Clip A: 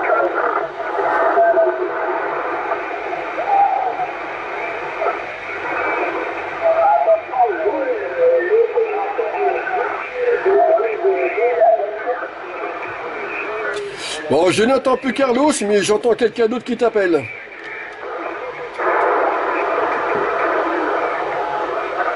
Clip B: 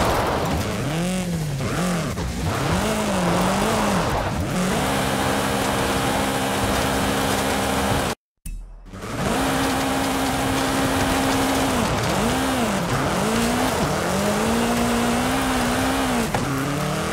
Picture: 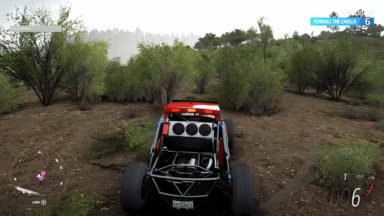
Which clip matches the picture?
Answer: B